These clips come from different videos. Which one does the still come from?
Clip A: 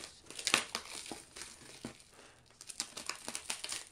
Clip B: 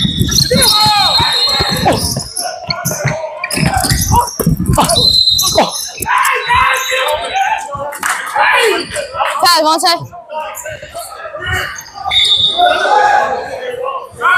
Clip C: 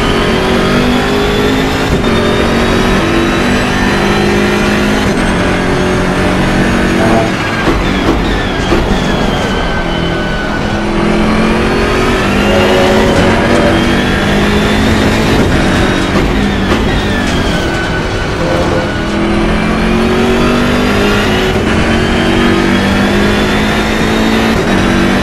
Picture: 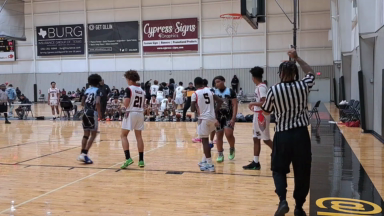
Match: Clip B